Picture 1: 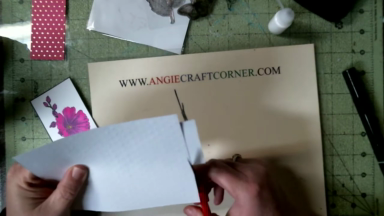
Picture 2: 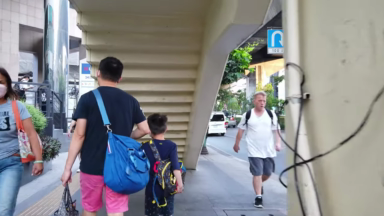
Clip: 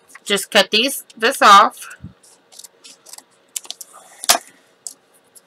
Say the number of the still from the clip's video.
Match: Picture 1